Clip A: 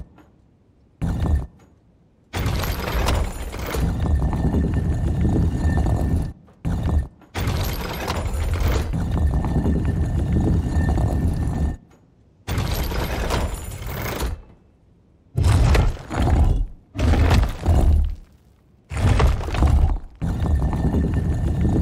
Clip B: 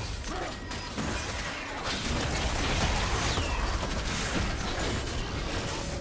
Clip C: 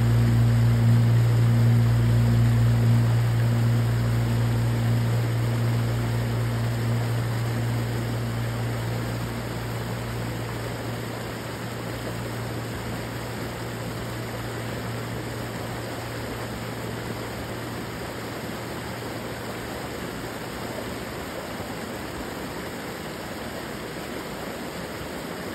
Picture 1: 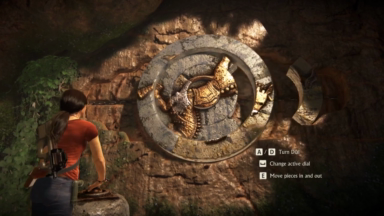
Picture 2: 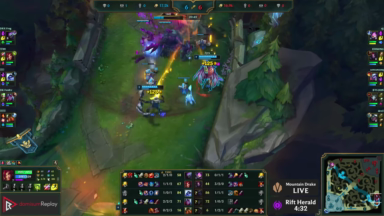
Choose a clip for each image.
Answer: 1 A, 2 B